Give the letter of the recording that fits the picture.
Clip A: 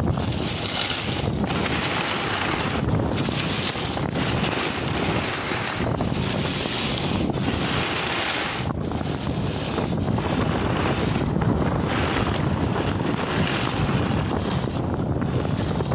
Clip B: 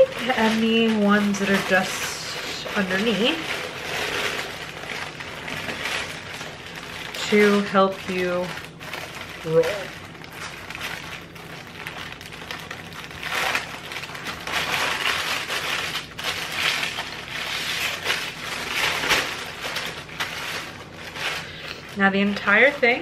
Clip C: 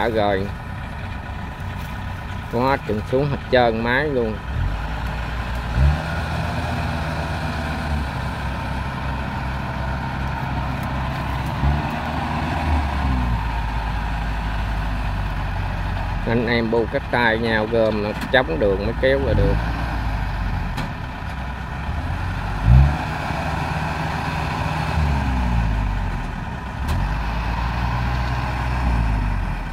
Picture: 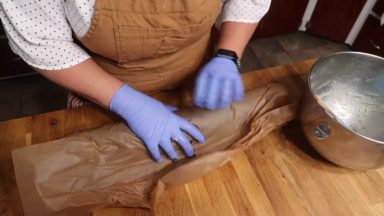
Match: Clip B